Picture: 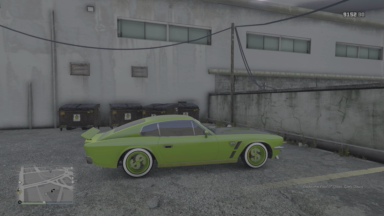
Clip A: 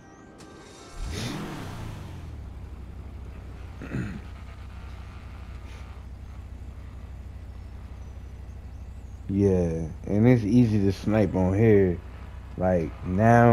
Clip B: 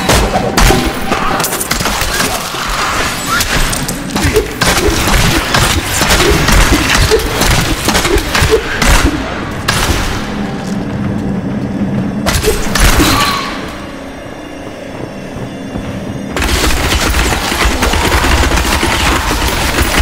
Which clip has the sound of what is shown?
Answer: A